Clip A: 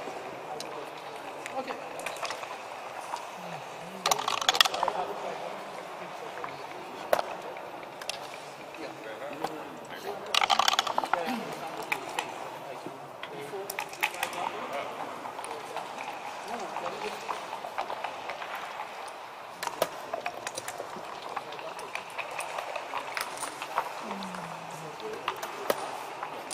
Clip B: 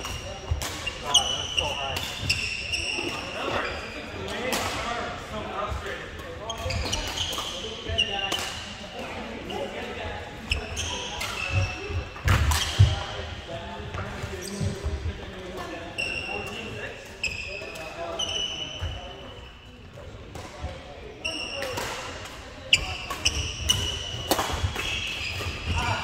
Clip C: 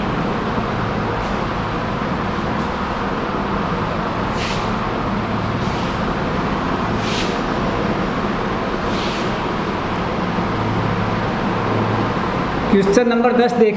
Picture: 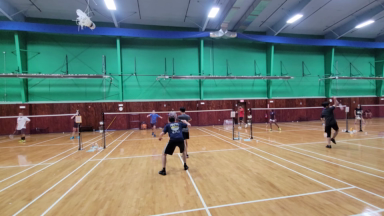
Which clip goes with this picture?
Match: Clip B